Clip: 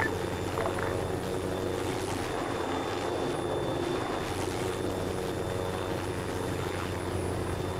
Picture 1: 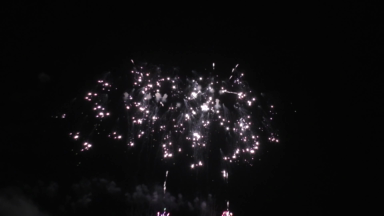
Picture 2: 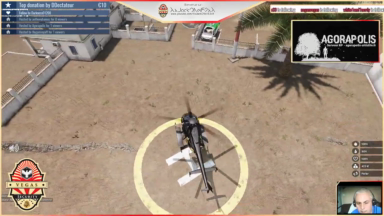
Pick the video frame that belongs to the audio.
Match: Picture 2